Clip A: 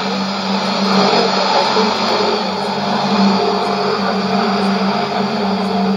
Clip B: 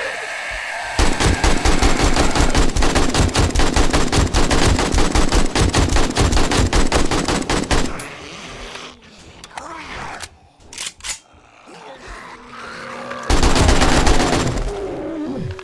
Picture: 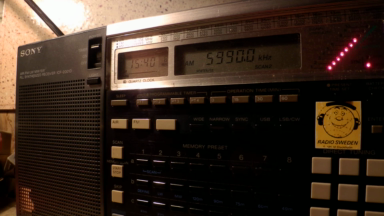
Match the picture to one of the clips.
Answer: A